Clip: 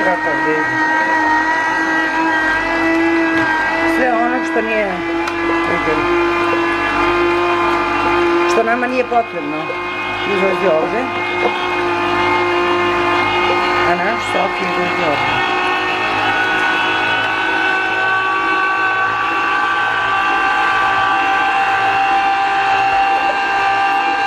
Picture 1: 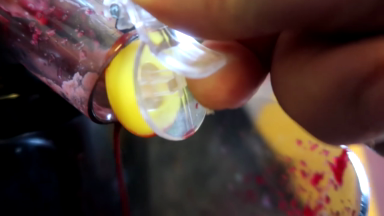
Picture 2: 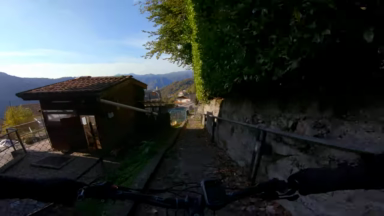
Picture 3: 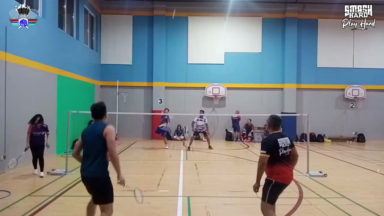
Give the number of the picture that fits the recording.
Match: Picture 1